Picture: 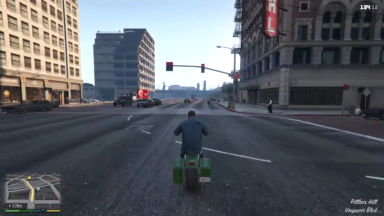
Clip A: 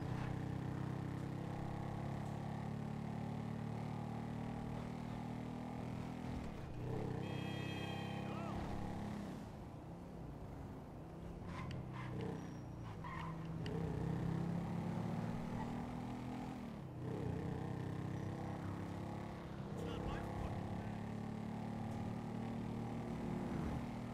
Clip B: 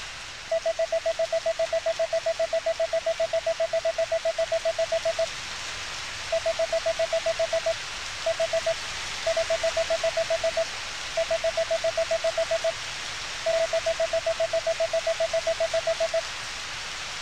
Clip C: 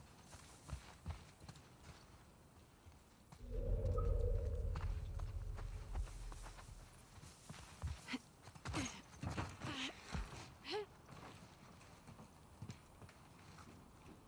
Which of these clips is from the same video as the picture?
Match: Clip A